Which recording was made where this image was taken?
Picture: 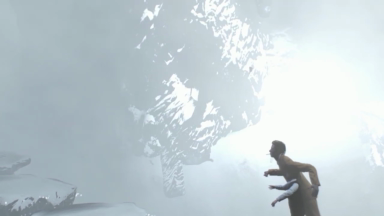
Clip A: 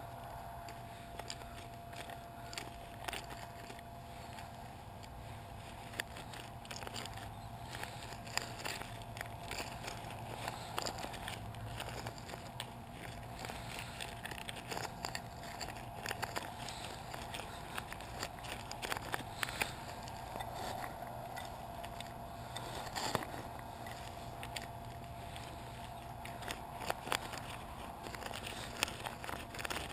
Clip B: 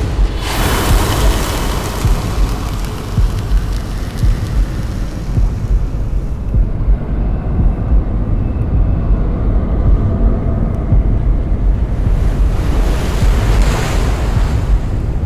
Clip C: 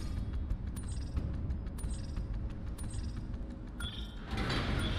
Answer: B